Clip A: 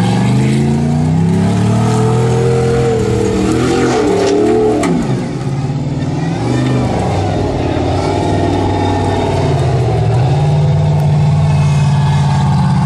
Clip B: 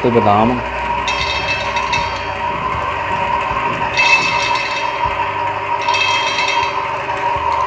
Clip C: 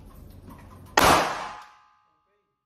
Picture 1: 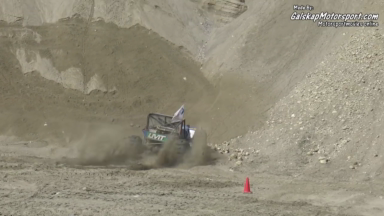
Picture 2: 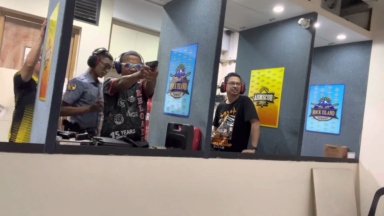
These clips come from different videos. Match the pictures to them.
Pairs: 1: A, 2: C